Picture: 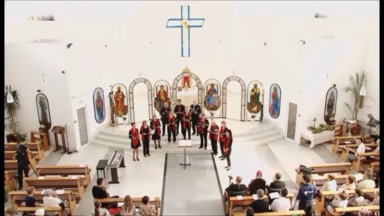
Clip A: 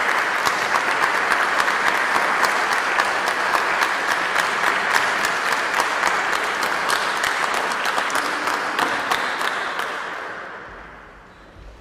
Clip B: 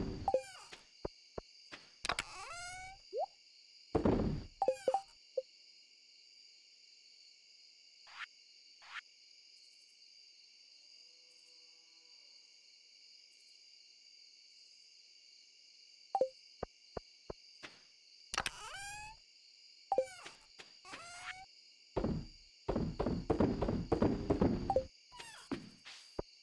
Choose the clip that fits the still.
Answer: A